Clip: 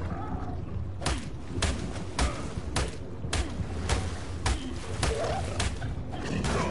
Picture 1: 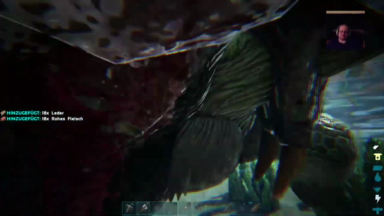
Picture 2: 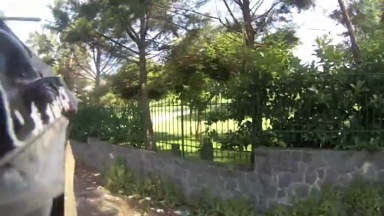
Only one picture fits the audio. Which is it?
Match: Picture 1